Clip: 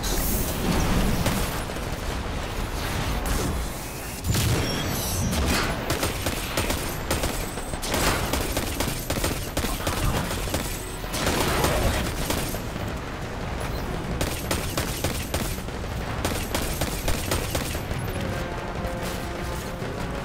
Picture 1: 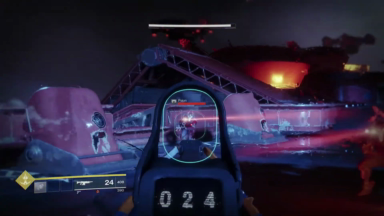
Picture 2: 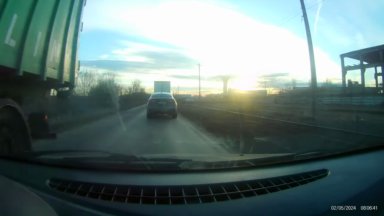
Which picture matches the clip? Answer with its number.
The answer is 1